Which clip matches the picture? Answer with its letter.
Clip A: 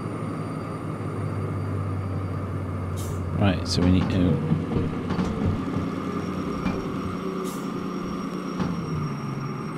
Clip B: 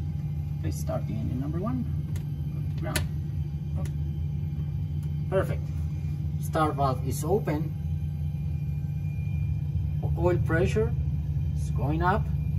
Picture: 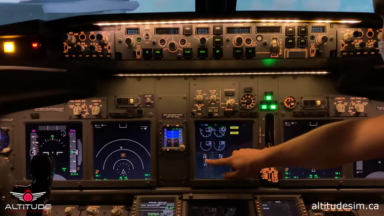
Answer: B